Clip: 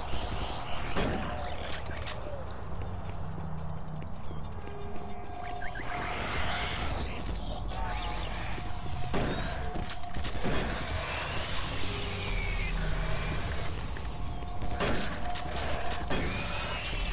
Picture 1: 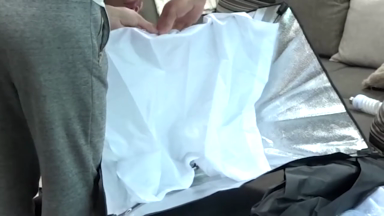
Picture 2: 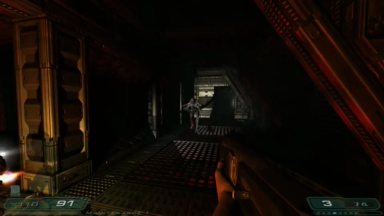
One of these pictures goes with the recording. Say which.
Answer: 2